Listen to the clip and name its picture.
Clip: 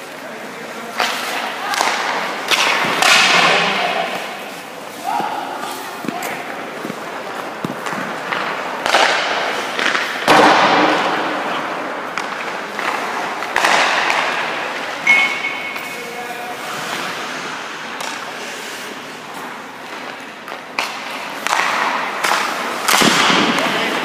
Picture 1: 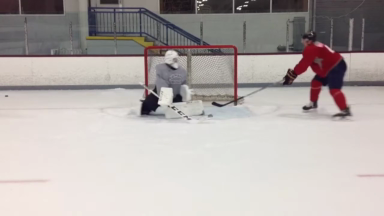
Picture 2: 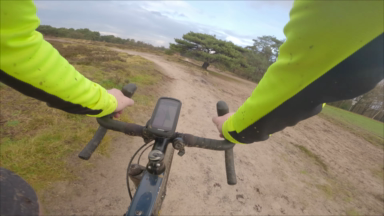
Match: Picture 1